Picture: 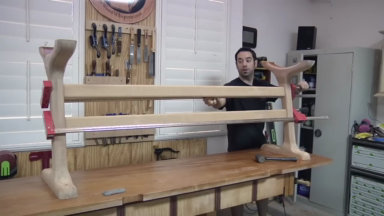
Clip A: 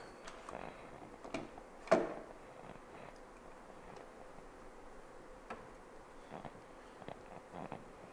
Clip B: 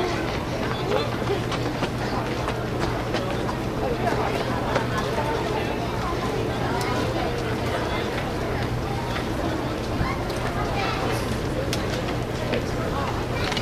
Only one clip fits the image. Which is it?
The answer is A